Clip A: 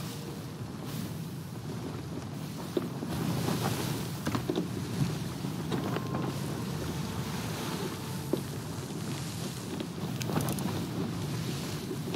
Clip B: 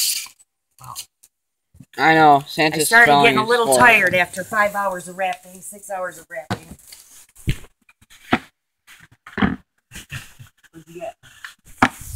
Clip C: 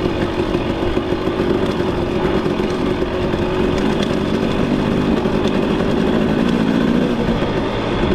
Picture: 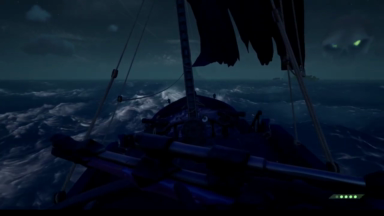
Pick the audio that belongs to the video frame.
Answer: A